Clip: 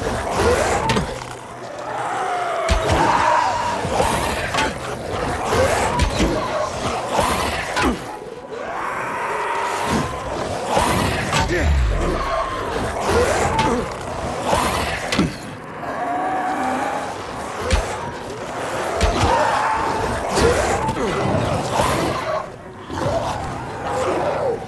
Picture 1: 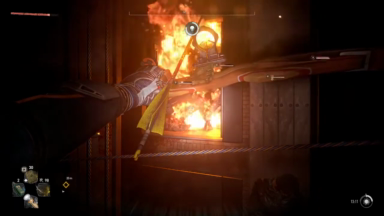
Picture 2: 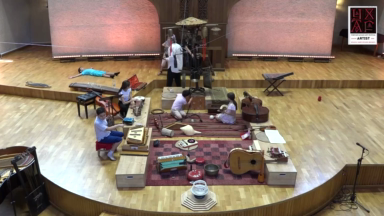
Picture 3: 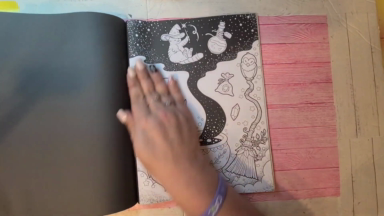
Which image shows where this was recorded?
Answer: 1